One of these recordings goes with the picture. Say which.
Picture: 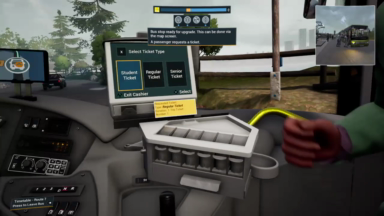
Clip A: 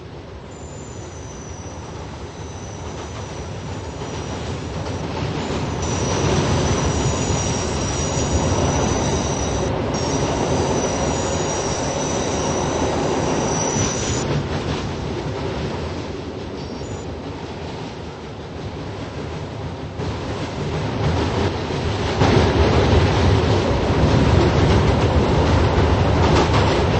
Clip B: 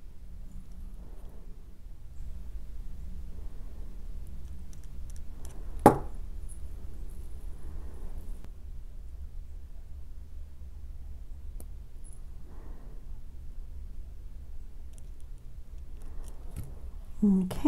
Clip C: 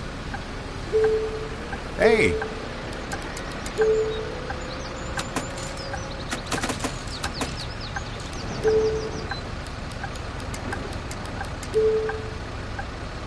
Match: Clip C